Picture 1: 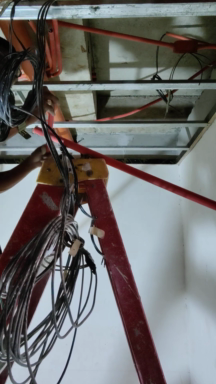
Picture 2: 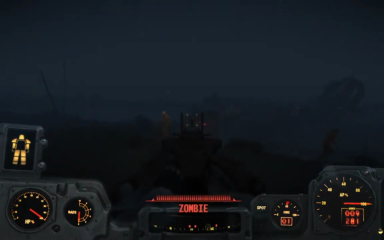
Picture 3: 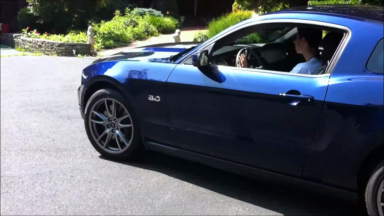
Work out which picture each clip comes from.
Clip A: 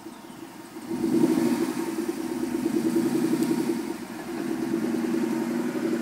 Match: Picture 3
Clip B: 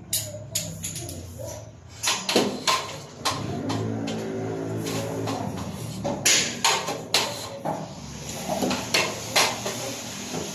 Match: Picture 1